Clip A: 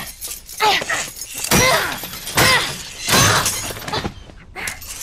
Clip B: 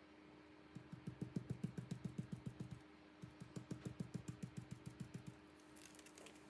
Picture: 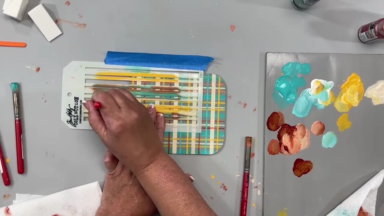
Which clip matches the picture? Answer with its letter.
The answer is B